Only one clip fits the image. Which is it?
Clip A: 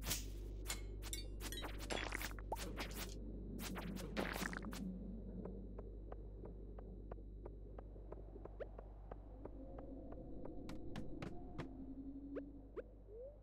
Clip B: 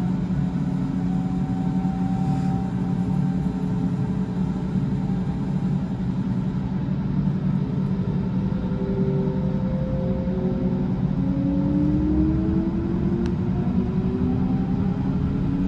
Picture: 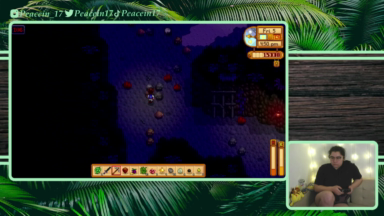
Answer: A